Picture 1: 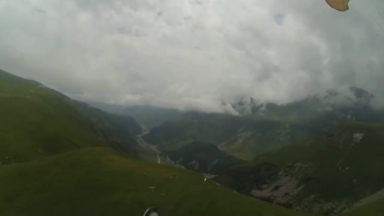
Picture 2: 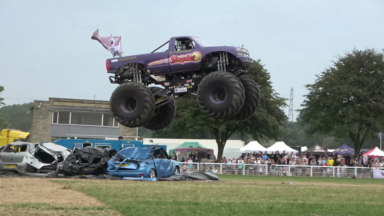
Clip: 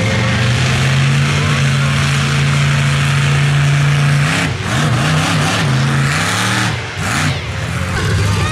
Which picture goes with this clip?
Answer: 2